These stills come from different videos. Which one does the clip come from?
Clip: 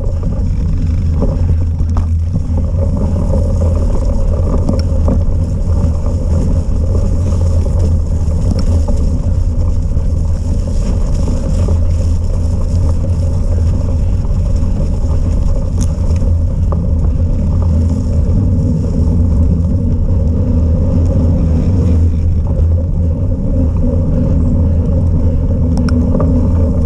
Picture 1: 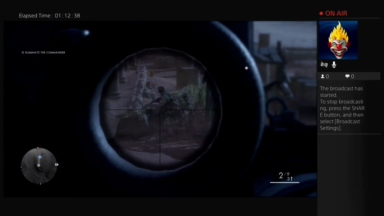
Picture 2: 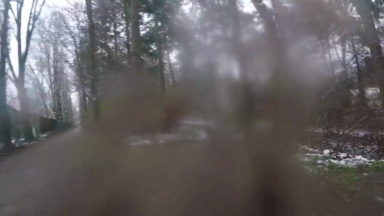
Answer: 2